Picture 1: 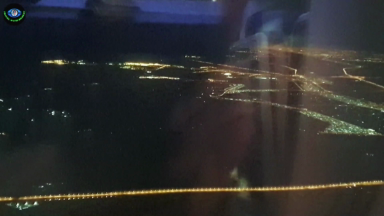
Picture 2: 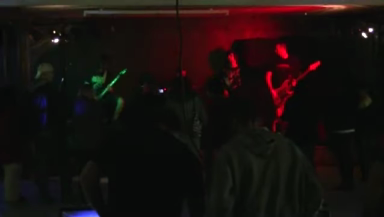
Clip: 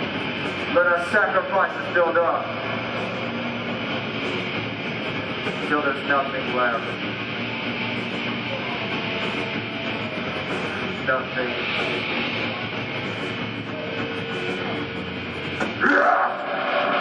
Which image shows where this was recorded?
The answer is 2